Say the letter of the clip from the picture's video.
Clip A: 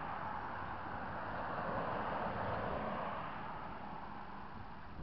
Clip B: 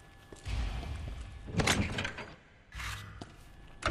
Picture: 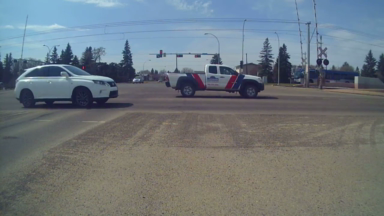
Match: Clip A